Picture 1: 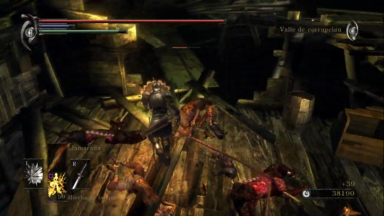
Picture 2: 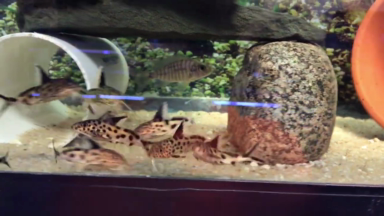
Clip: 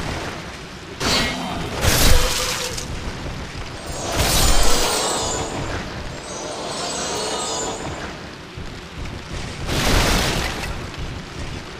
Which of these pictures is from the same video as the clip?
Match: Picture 1